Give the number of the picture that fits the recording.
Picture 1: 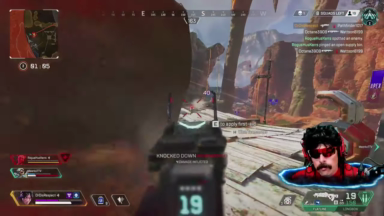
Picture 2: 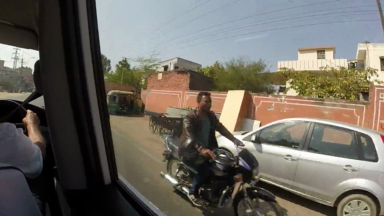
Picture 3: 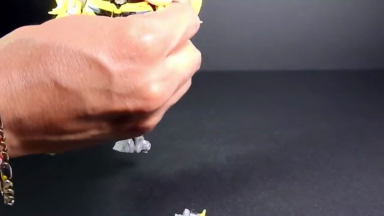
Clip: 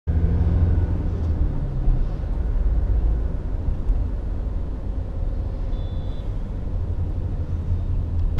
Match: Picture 2